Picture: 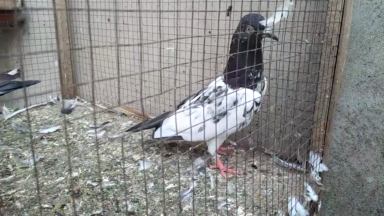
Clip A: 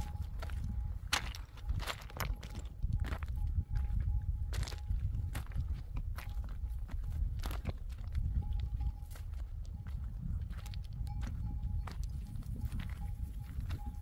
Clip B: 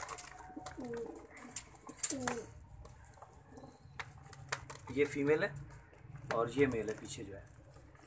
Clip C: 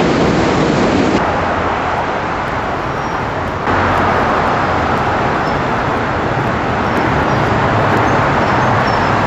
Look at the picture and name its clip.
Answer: B